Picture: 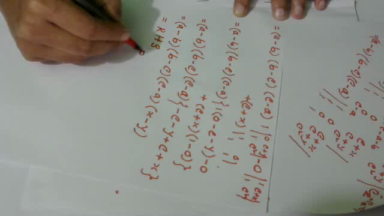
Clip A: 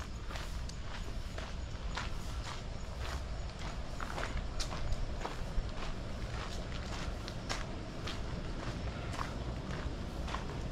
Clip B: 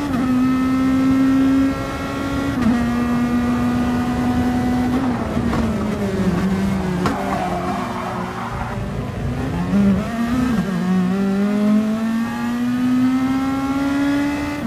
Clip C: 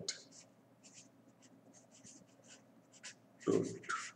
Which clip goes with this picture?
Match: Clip C